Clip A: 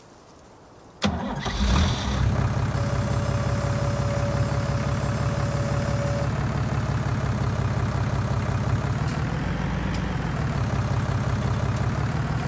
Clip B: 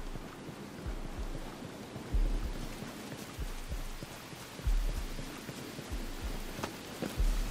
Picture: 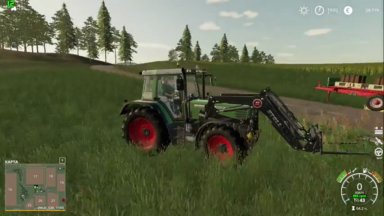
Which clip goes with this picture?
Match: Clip A